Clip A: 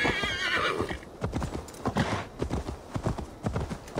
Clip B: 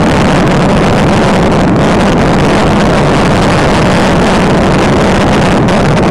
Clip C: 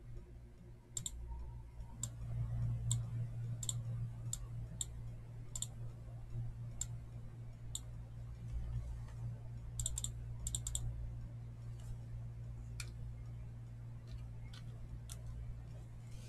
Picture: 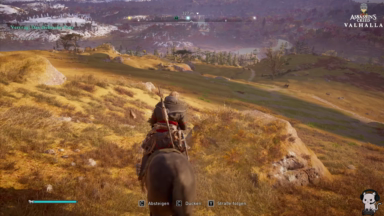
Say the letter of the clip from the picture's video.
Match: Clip A